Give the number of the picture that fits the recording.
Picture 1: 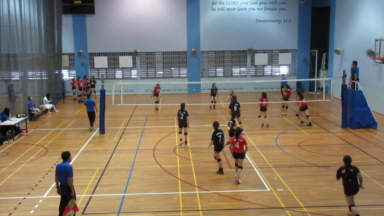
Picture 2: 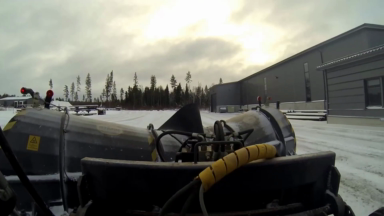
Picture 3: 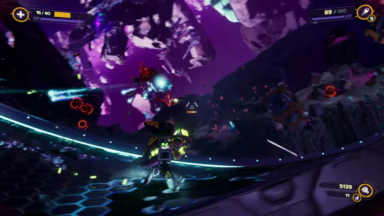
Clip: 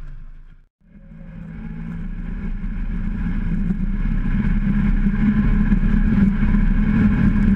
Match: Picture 2